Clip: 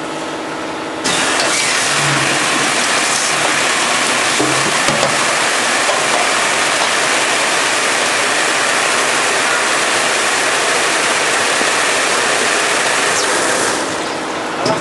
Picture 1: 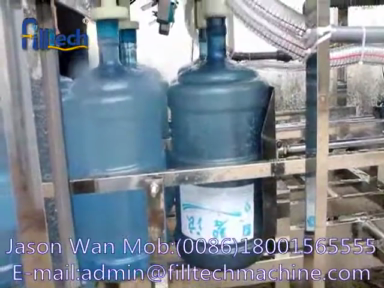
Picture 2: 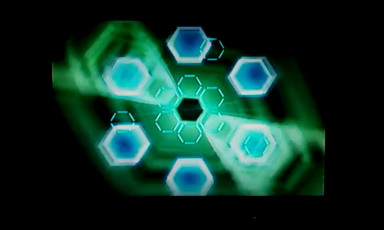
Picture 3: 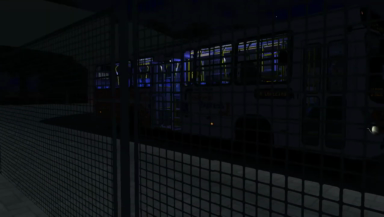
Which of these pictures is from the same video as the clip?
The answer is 1